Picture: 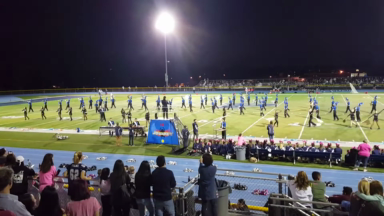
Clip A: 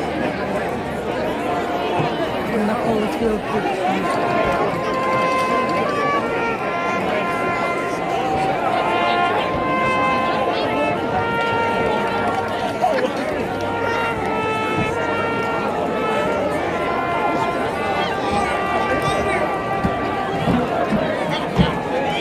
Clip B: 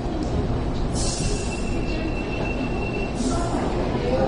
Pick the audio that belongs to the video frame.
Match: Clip A